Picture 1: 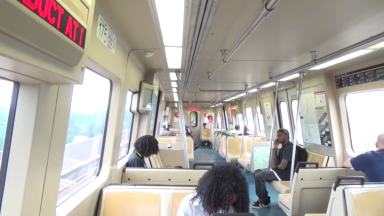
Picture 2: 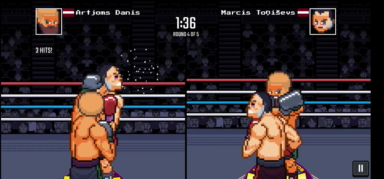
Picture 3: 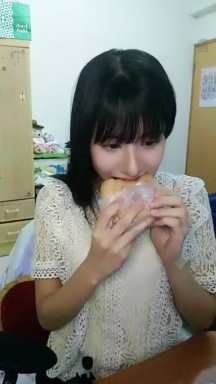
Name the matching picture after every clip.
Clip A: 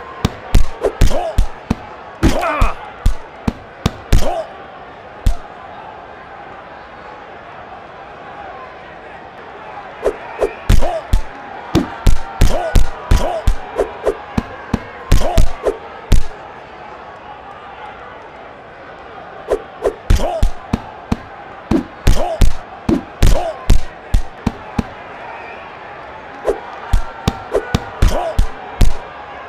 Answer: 2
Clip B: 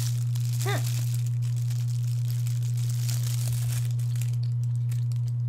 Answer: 3